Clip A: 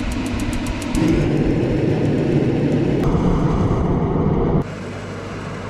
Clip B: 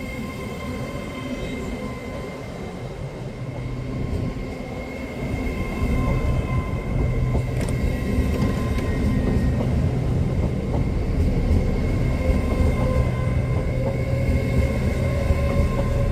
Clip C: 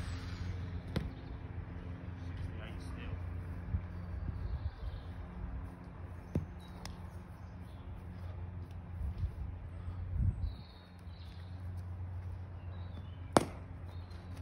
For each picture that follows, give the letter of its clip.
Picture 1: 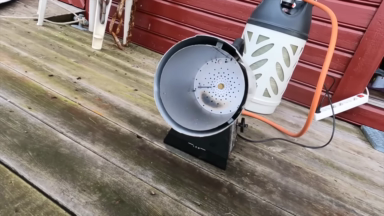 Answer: A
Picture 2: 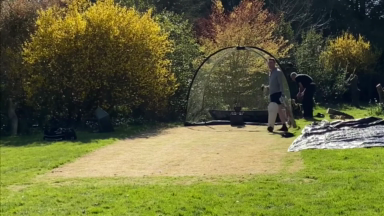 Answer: C